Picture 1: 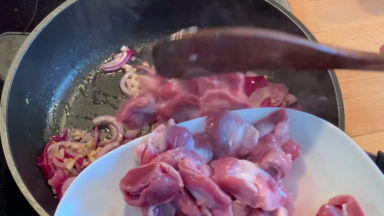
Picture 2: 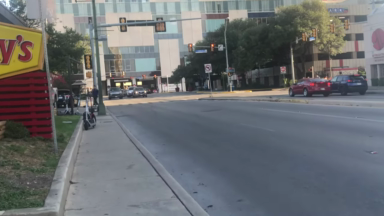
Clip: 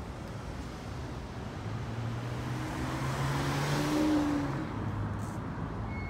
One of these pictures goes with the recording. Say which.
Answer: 2